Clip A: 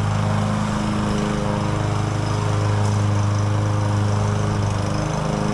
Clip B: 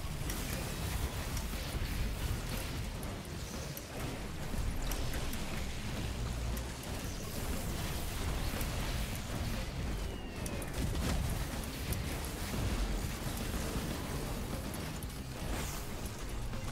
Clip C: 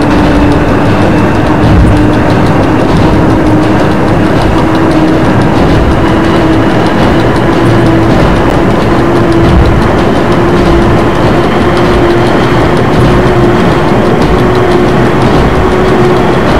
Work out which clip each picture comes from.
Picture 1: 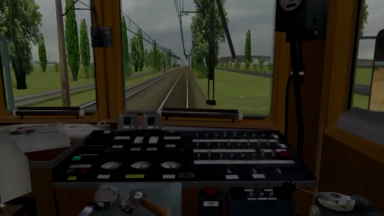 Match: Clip C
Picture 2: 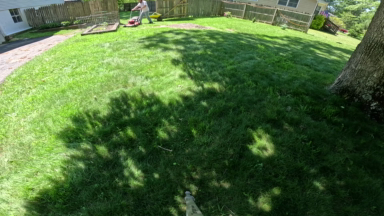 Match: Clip A